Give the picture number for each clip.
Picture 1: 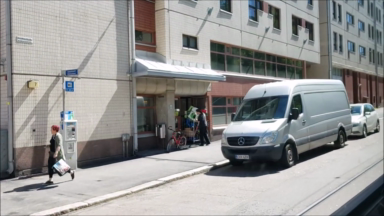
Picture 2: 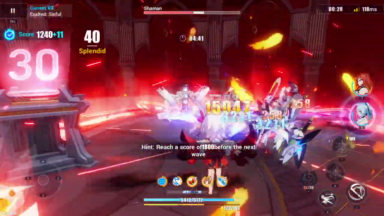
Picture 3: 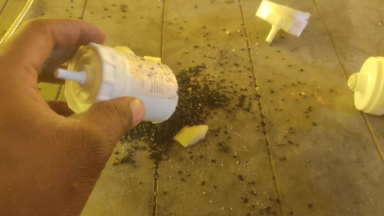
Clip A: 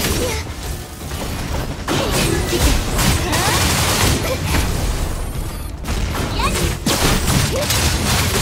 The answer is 2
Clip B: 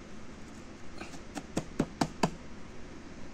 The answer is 3